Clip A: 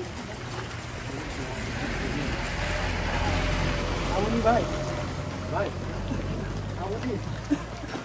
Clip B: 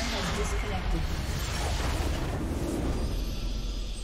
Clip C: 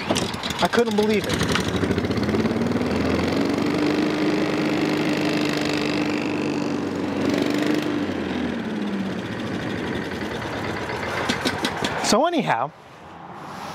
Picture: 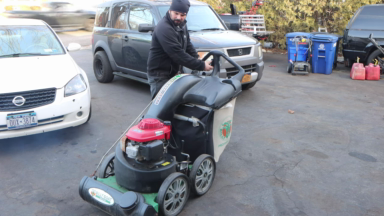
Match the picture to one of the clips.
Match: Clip C